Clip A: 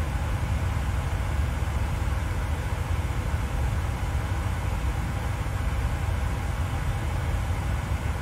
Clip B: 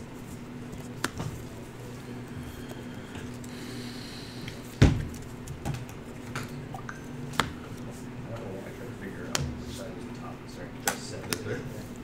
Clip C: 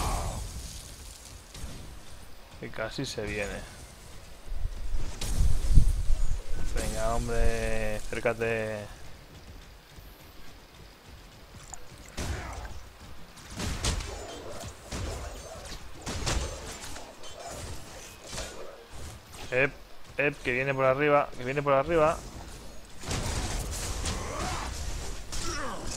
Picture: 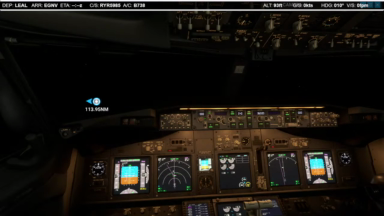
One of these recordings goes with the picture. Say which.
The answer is A